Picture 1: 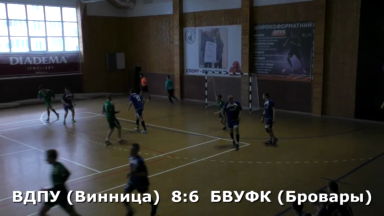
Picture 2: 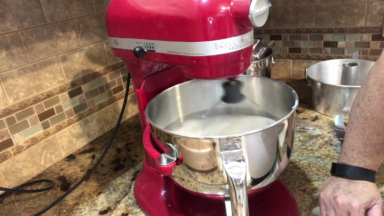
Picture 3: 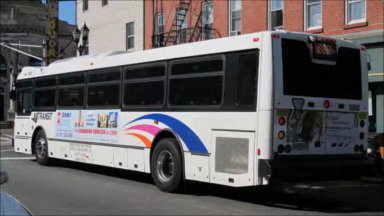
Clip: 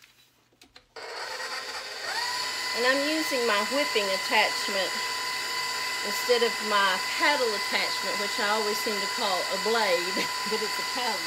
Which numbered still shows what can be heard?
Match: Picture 2